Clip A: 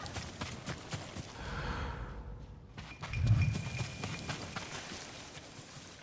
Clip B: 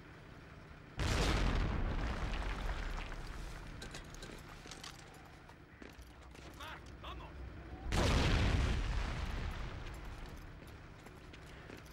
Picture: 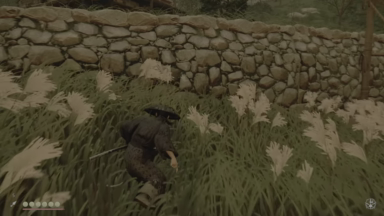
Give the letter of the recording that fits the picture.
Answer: A